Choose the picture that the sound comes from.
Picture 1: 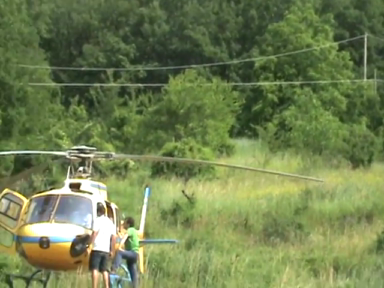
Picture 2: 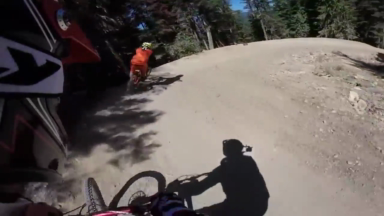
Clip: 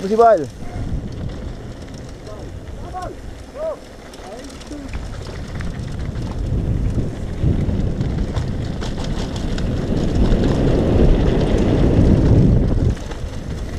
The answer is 2